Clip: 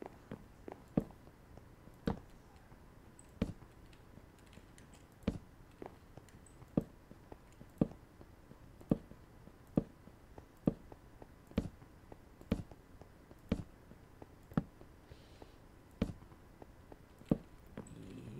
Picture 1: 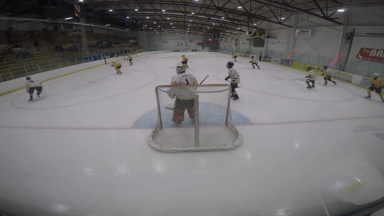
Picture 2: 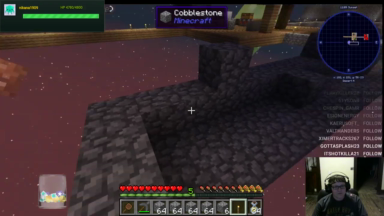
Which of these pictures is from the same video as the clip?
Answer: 2